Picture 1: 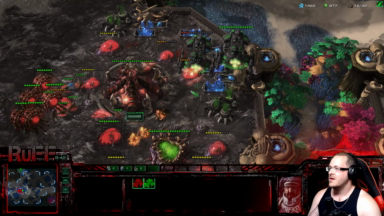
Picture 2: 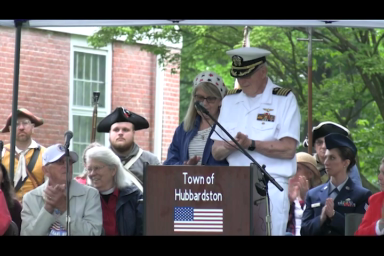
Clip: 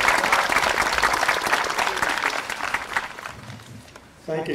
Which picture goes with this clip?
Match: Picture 2